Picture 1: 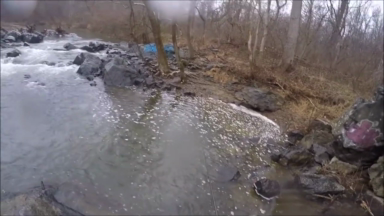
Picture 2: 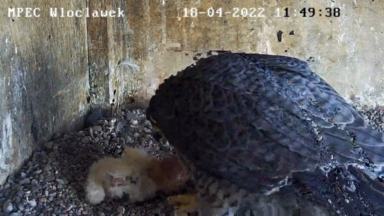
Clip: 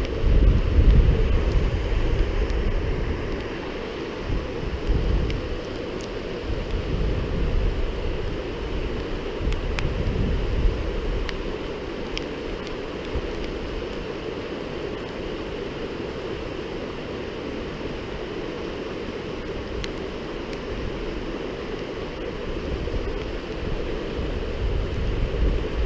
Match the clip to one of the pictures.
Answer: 1